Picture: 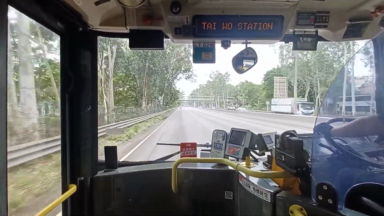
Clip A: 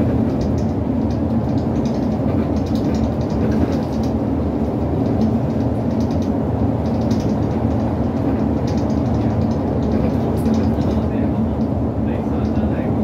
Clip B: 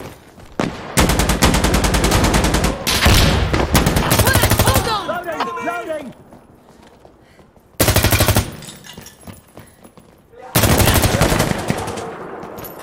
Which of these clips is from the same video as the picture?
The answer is A